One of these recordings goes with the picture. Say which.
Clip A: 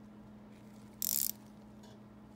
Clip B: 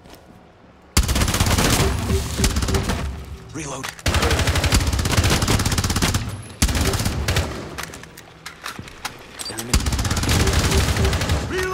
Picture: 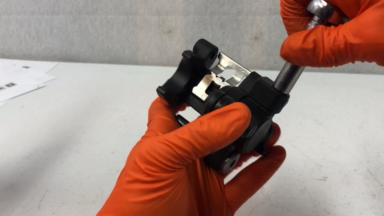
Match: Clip A